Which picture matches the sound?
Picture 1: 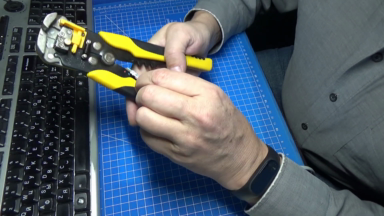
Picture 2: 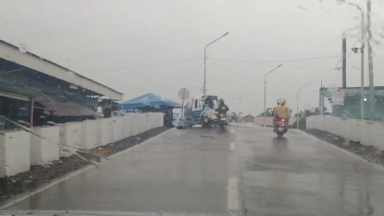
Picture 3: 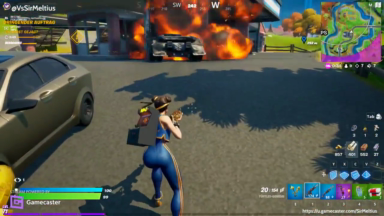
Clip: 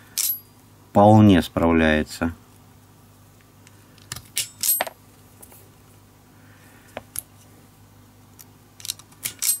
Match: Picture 1